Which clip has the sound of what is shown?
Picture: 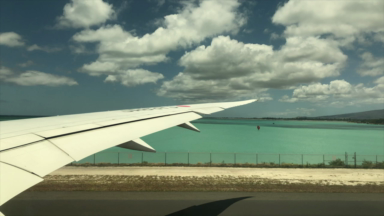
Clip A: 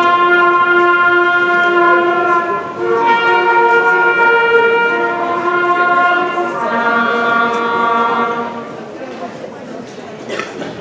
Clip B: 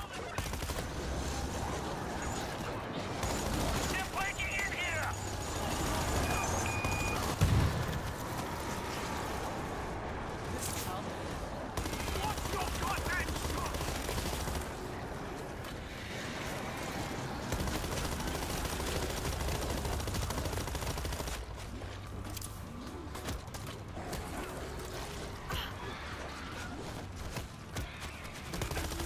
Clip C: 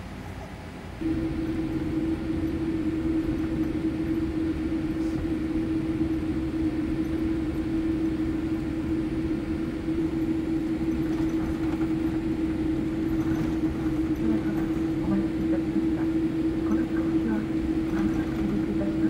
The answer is C